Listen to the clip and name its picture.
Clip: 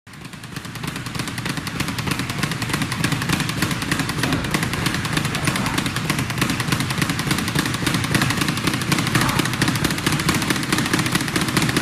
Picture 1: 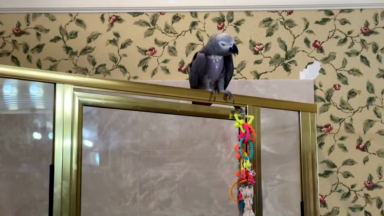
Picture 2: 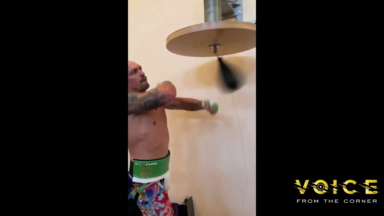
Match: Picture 2